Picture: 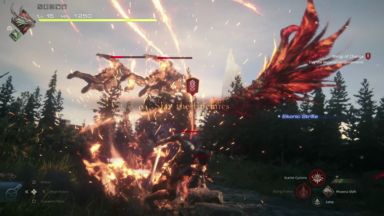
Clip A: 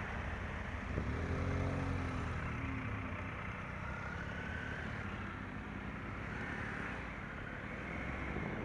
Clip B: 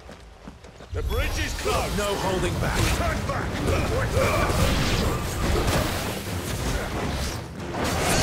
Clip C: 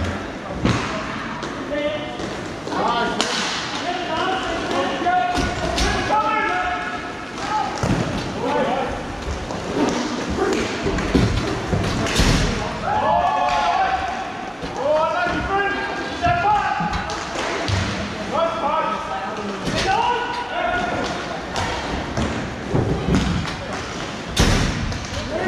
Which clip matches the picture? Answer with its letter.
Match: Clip B